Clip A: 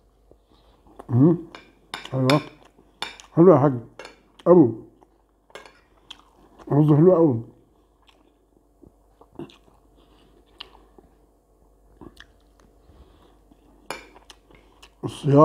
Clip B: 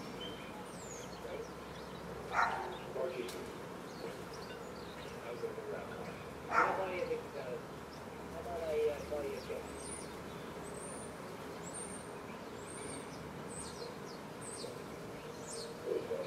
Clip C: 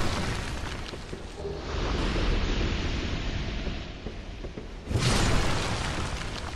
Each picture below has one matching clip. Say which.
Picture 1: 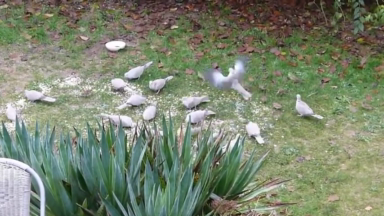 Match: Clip B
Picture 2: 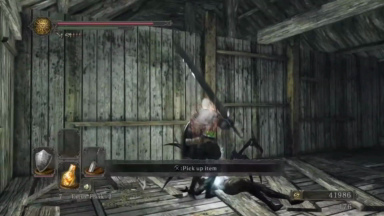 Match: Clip C